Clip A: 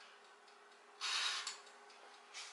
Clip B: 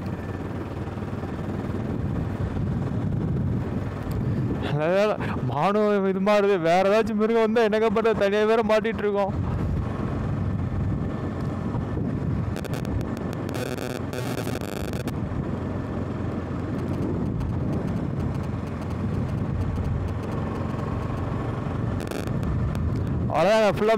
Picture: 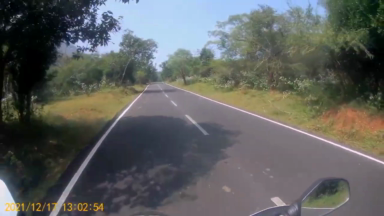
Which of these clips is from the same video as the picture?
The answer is B